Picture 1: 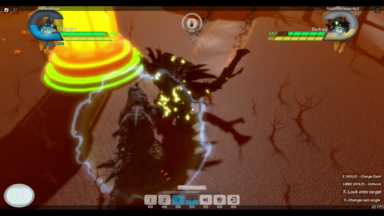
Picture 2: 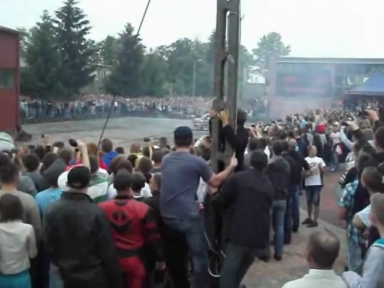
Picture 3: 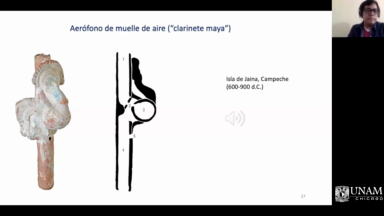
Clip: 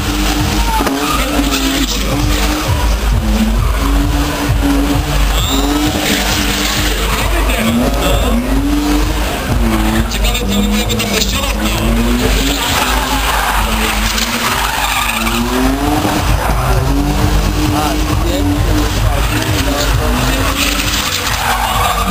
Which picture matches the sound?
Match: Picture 2